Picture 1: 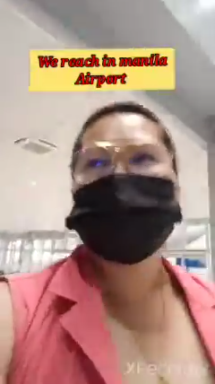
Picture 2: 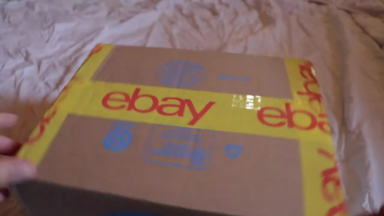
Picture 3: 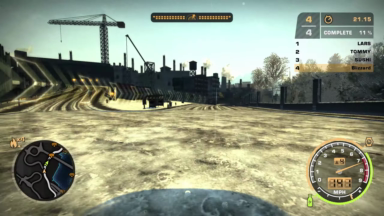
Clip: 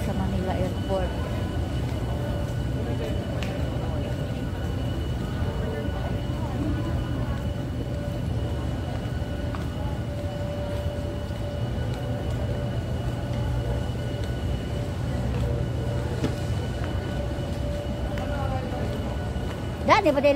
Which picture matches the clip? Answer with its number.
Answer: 1